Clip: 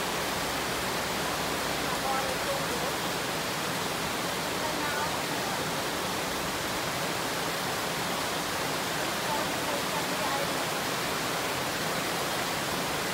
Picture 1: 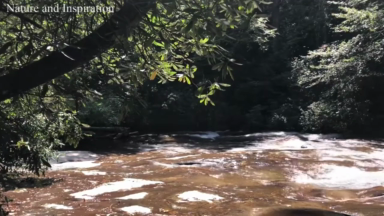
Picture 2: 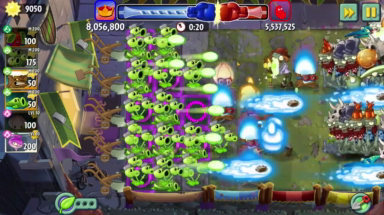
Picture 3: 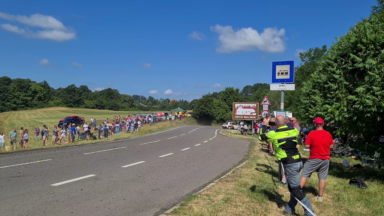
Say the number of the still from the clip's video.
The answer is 1